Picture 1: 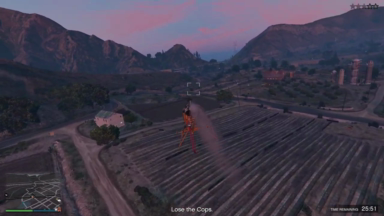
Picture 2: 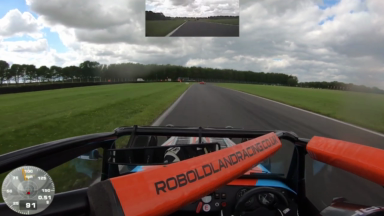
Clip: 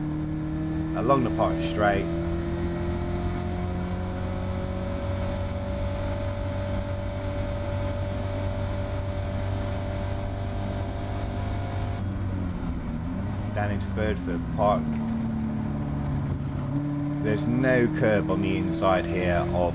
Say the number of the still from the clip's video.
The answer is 2